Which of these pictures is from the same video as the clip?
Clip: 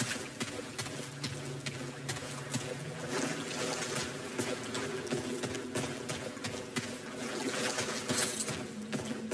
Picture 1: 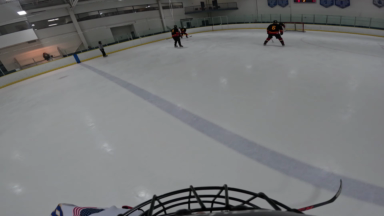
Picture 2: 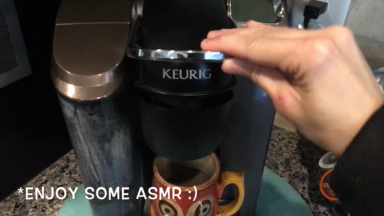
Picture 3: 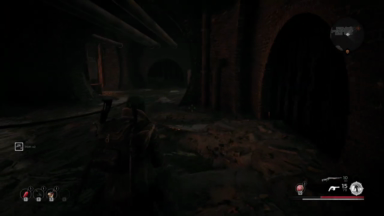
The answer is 3